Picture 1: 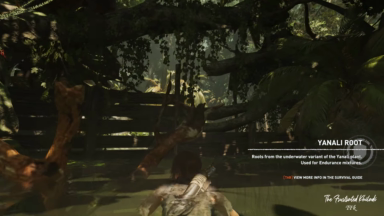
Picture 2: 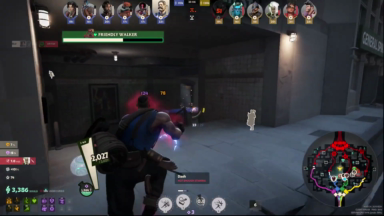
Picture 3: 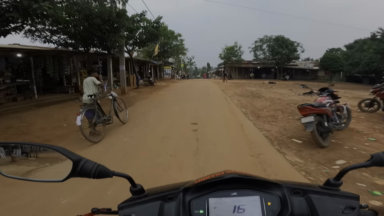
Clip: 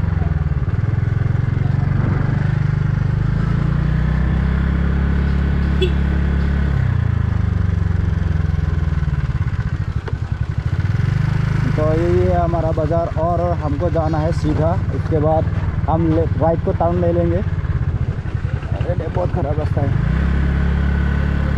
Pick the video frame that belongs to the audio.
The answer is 3